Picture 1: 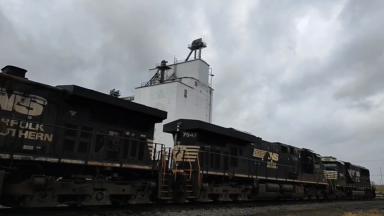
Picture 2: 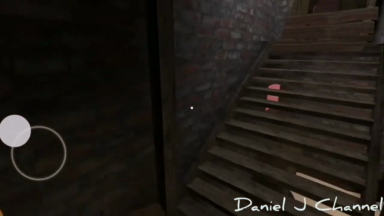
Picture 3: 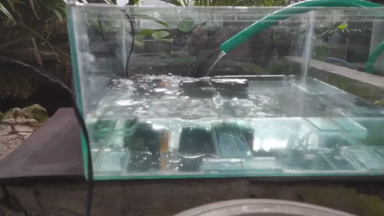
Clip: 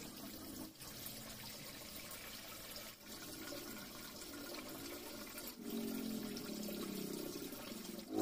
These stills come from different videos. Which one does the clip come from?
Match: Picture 3